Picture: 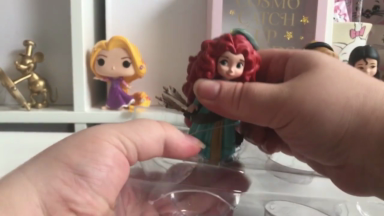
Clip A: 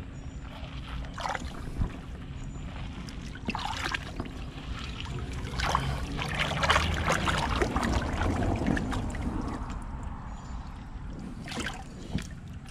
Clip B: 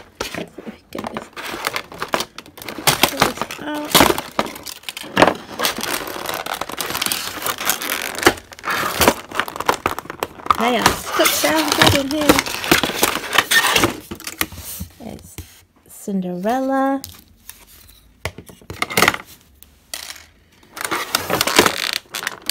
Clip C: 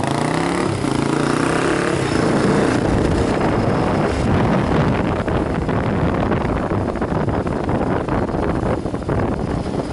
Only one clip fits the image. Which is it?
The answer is B